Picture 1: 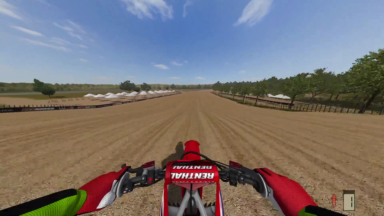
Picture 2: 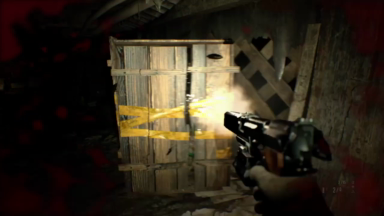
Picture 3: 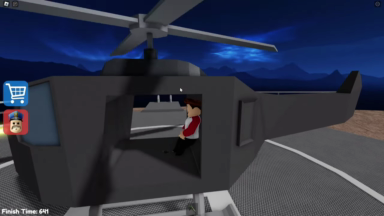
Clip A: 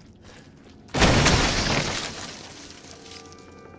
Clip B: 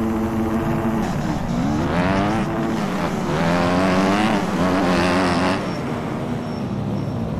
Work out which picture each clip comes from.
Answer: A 2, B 1